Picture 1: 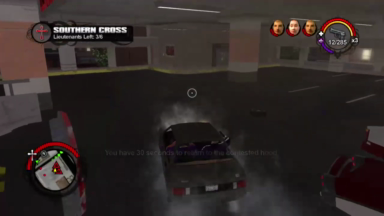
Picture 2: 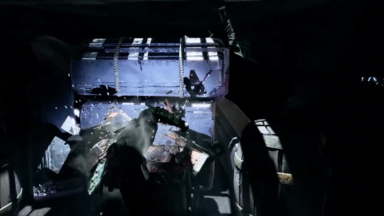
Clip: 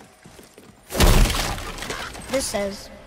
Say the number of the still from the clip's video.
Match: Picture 2